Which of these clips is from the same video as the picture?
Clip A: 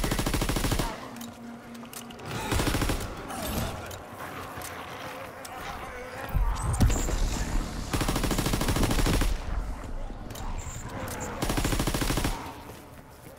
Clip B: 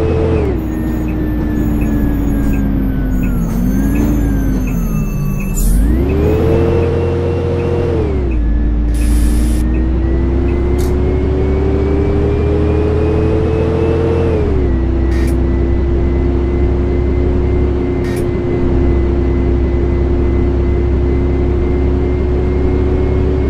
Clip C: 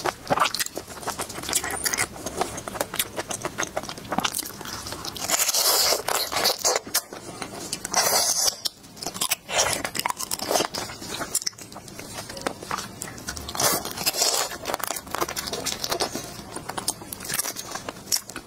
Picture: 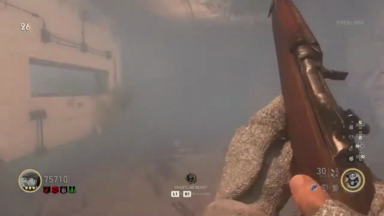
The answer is A